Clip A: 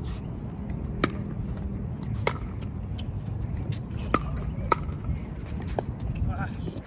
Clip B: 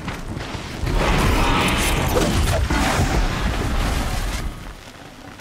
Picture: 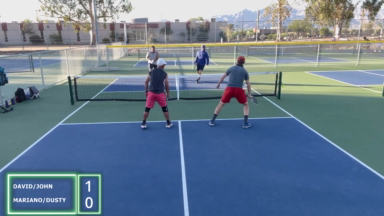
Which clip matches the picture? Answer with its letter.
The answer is A